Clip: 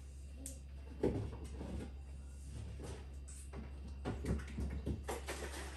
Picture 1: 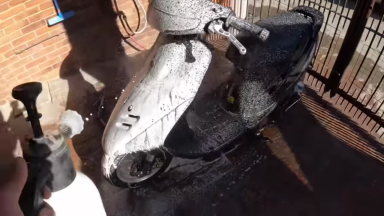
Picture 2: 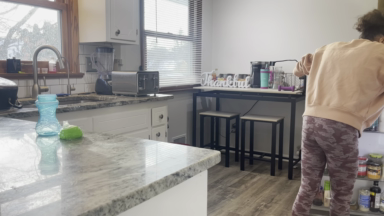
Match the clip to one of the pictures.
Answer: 2